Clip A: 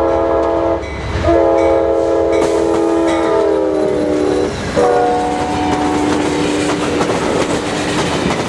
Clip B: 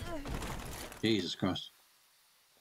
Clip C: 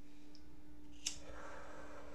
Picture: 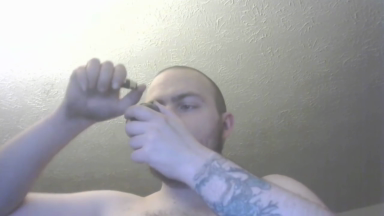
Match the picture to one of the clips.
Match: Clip C